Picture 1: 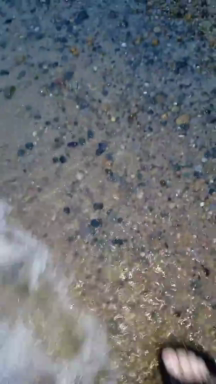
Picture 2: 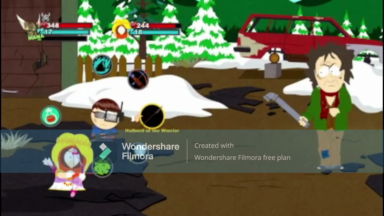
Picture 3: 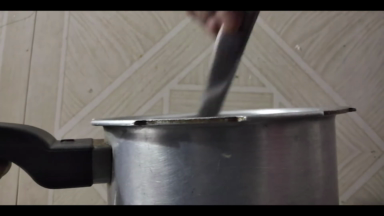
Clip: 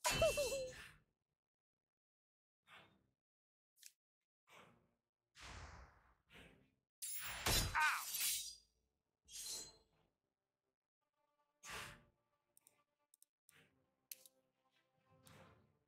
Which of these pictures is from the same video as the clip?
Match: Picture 2